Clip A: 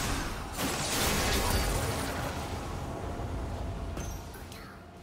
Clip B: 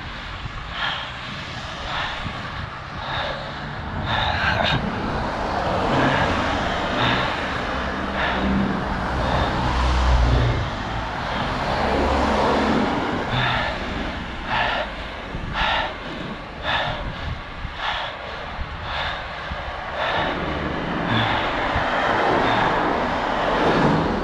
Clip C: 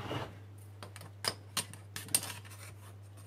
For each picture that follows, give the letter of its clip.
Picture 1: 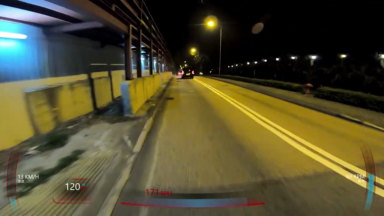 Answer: B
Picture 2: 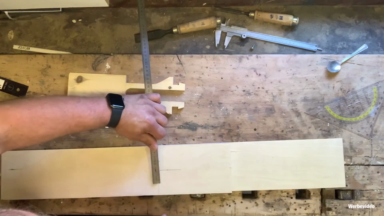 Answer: C